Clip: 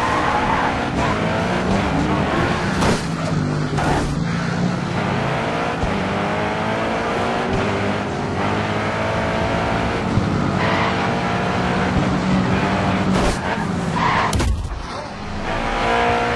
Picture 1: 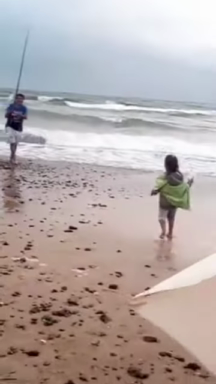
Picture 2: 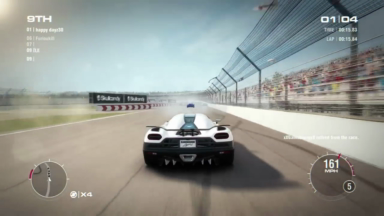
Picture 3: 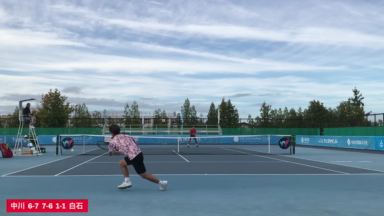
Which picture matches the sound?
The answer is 2